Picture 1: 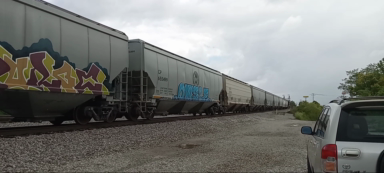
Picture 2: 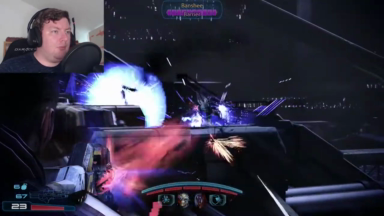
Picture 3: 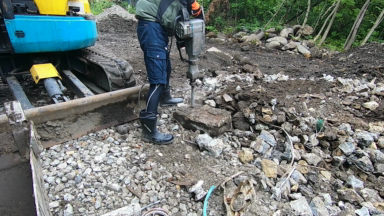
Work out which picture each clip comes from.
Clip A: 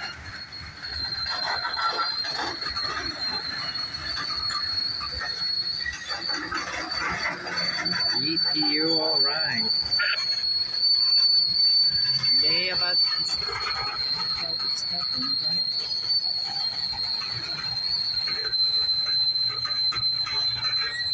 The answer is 1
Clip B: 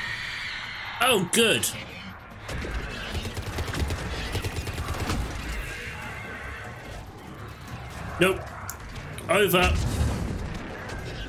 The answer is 2